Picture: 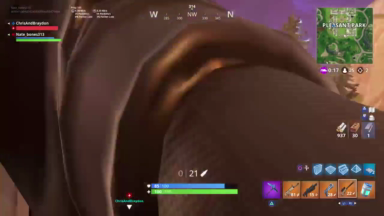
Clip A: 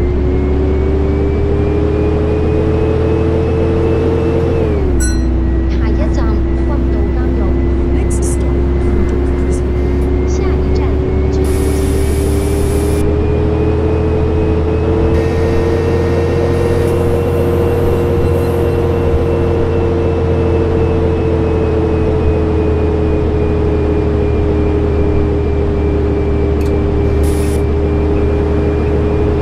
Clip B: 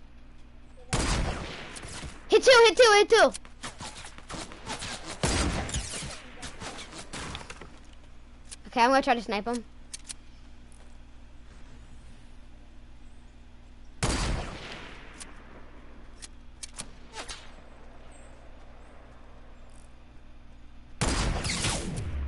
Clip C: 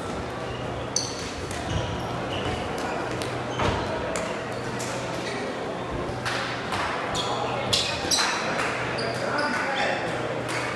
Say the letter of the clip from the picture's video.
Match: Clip B